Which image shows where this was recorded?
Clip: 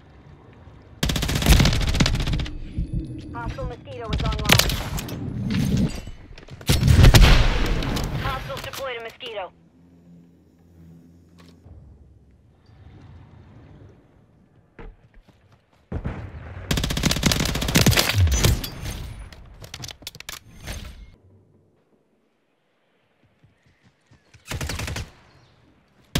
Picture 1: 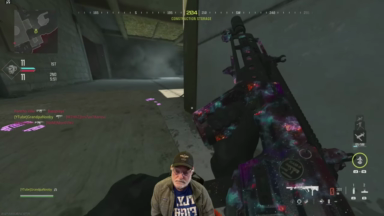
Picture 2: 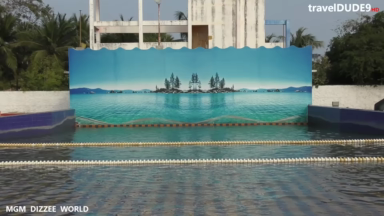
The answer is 1